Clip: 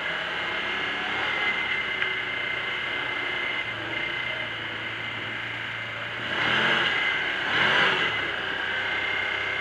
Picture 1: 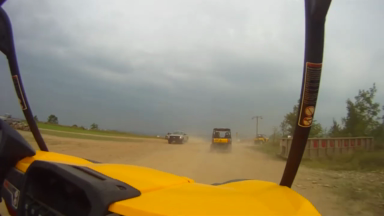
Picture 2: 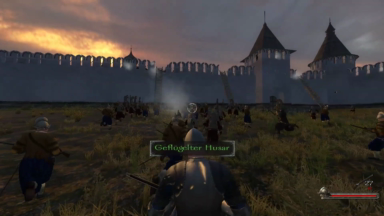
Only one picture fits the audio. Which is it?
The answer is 1